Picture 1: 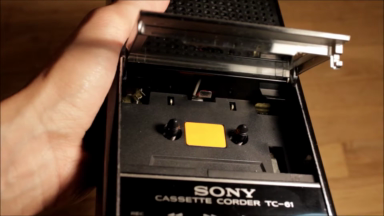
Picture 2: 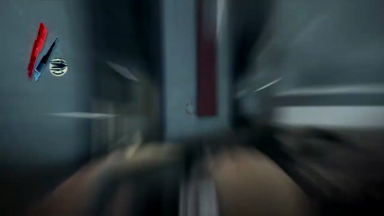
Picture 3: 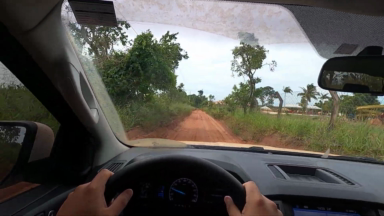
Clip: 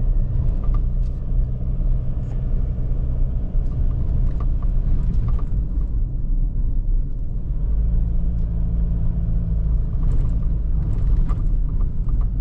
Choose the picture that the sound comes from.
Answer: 3